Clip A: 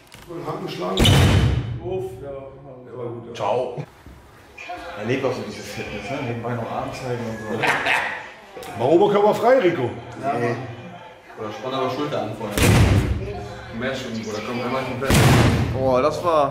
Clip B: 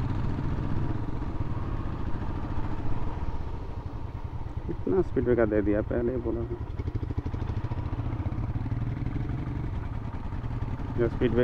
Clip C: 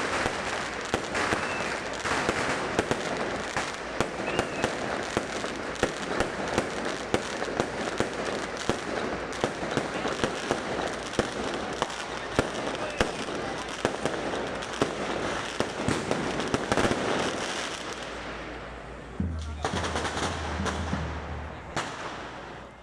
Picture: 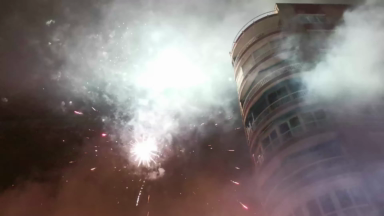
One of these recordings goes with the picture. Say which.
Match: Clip C